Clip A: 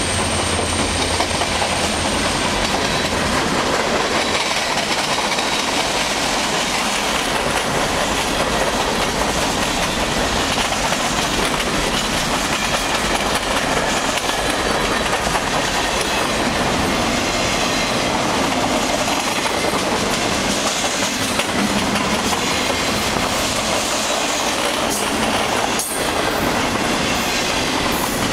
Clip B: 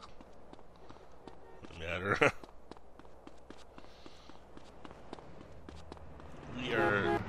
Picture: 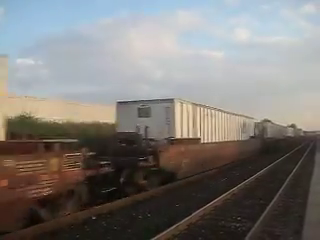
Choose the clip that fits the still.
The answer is A